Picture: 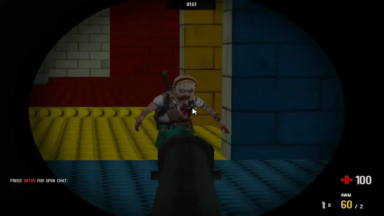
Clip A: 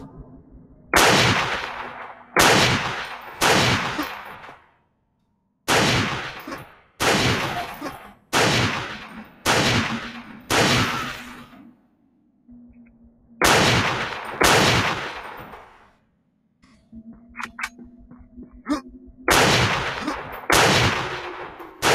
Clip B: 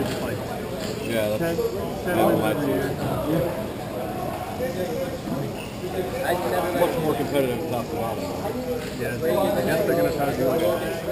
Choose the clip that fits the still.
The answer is A